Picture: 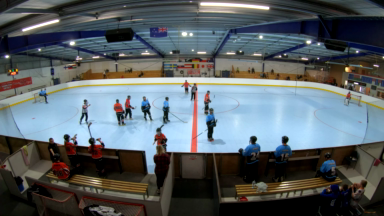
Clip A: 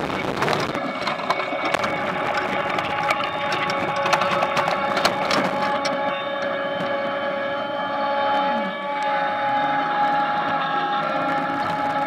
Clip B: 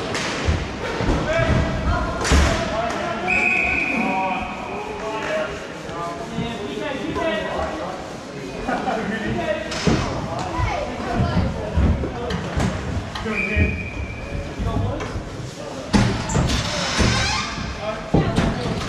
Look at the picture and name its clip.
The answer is B